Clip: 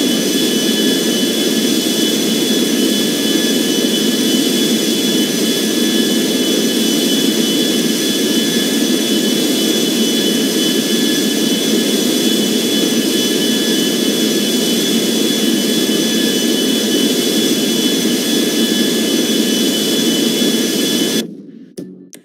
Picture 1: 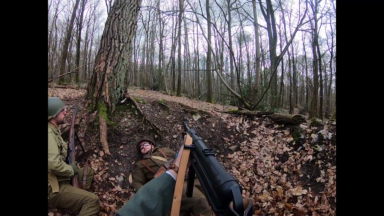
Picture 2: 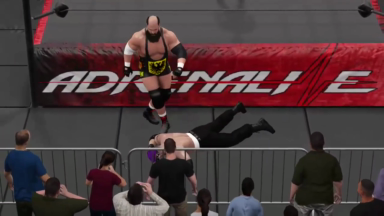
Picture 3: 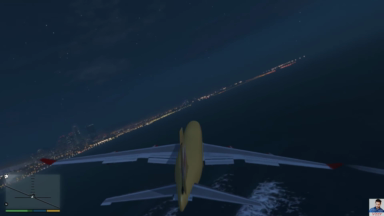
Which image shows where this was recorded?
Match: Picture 3